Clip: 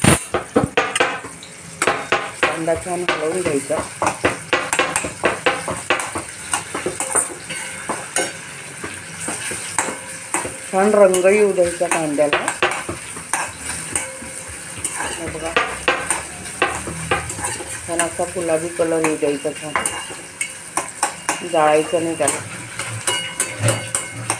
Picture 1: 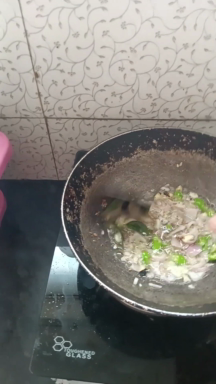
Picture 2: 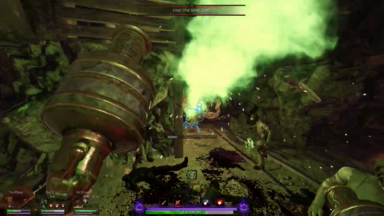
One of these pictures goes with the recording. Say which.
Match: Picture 1